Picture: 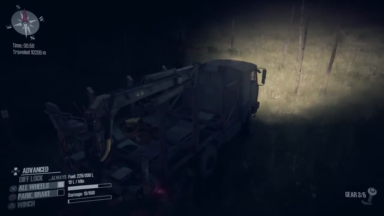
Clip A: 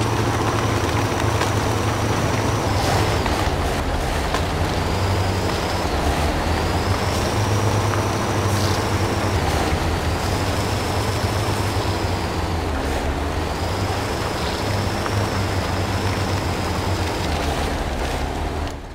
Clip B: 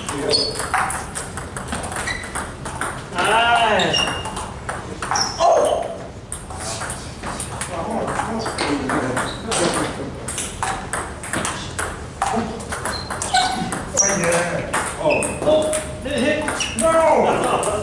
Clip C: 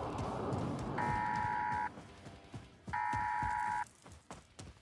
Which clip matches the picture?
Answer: A